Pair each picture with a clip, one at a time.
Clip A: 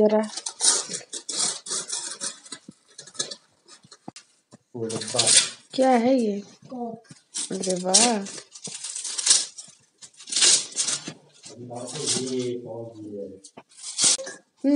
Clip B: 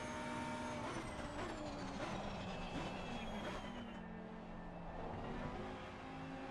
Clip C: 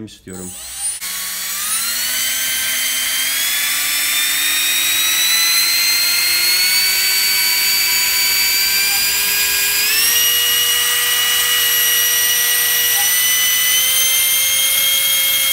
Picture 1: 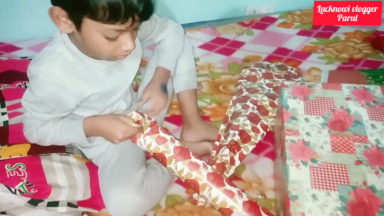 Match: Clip A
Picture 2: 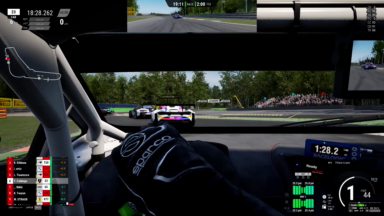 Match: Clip B